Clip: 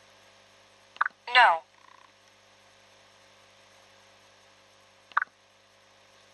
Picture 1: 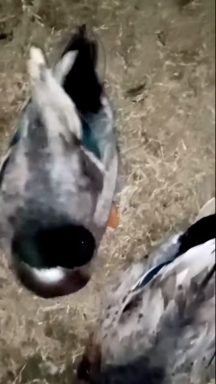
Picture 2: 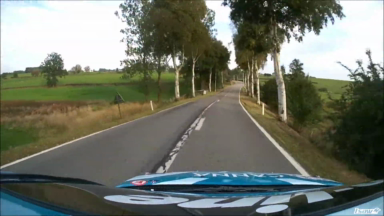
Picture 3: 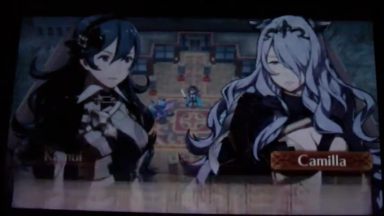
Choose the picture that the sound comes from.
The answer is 3